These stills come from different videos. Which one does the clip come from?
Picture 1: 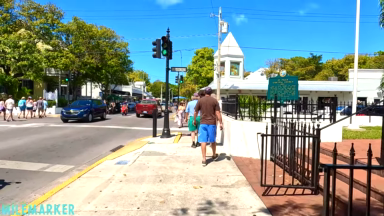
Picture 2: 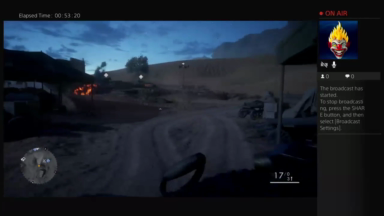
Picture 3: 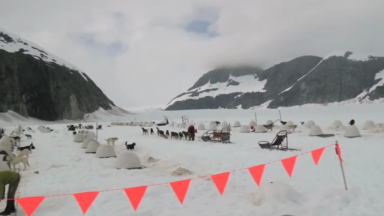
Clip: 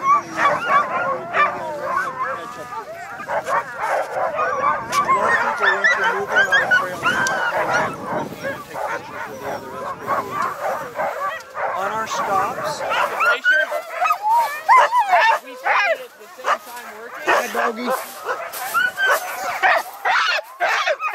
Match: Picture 3